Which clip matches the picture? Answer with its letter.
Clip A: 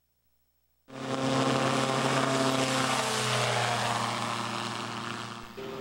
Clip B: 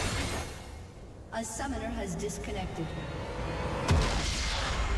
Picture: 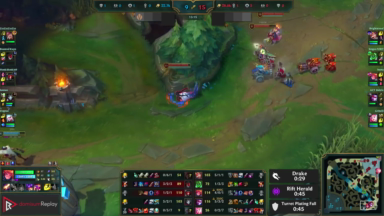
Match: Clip B